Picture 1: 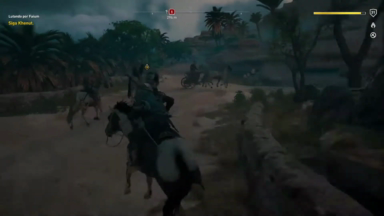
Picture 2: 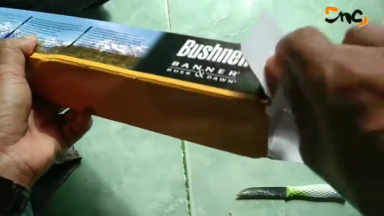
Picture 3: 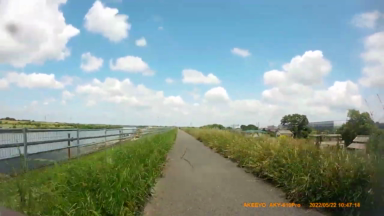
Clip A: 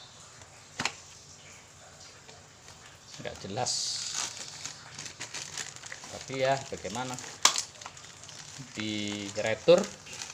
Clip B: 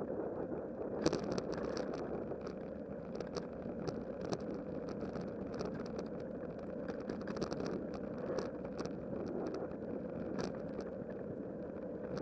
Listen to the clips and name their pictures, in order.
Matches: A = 2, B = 3